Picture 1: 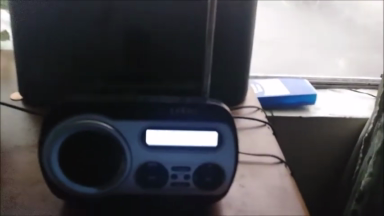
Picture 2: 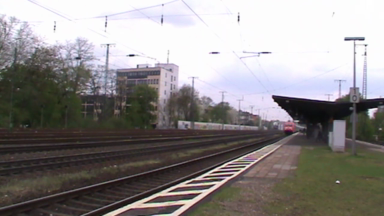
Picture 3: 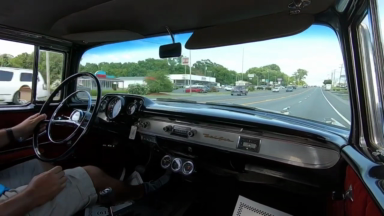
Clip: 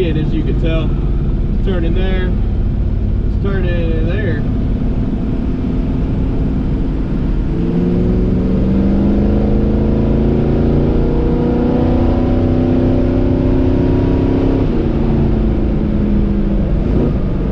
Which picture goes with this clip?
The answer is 3